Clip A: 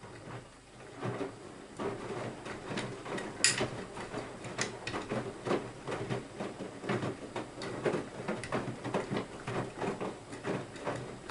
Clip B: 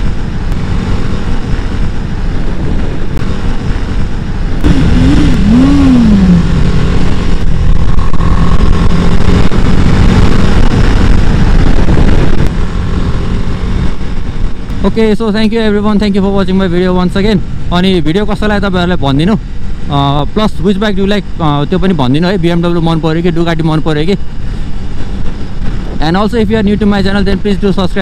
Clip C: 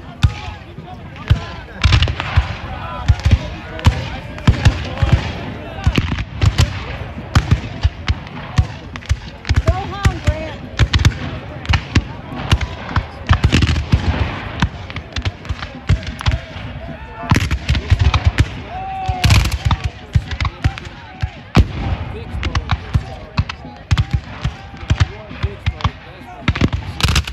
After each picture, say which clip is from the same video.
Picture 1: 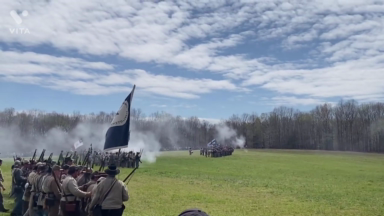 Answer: C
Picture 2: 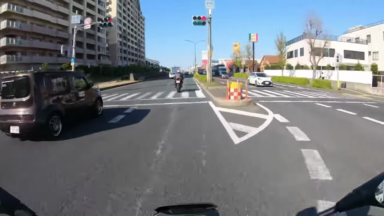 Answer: B